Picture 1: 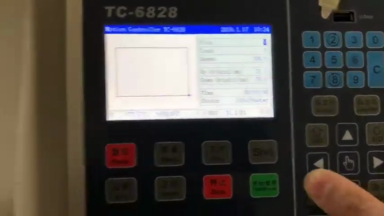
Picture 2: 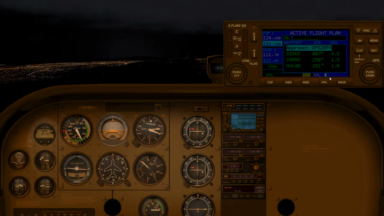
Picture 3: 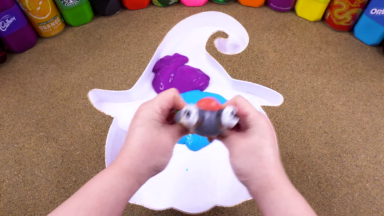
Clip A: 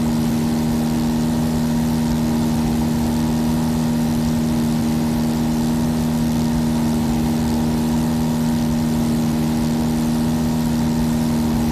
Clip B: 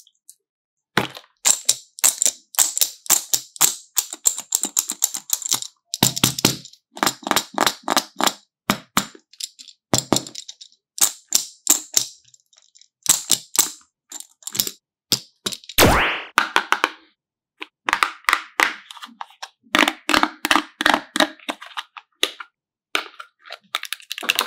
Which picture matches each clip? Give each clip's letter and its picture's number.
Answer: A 2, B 3